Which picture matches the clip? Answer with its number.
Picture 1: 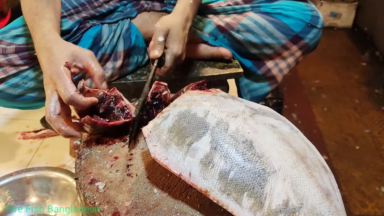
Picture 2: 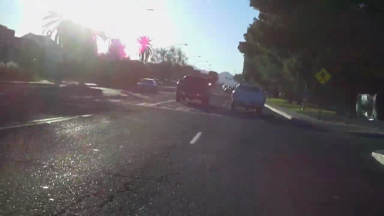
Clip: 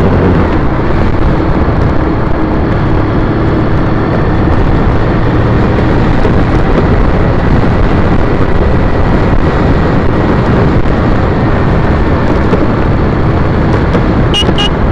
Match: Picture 2